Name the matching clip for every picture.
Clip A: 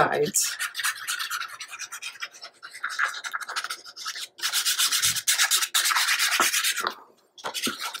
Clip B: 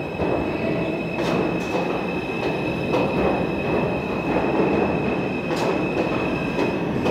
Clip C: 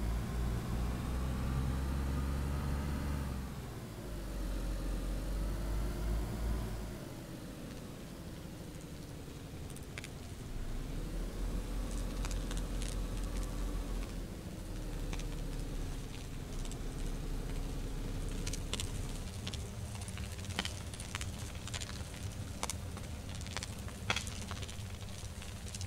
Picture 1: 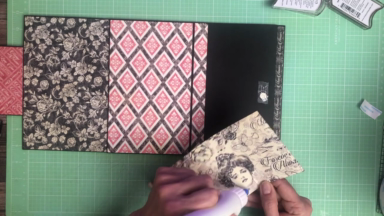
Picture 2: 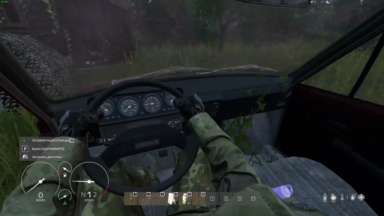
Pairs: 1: A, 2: C